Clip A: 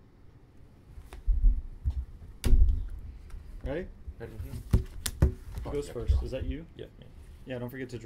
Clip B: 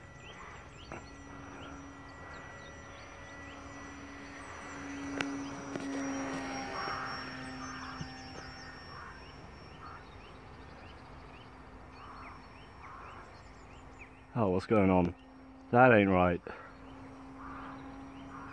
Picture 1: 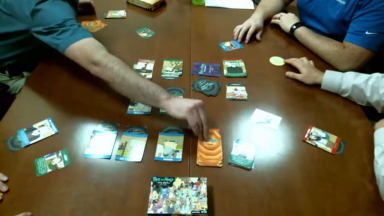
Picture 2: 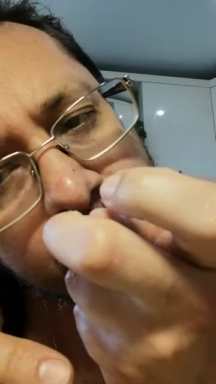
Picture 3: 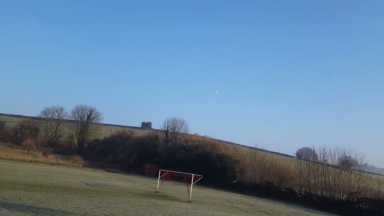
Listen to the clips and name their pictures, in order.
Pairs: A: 1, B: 3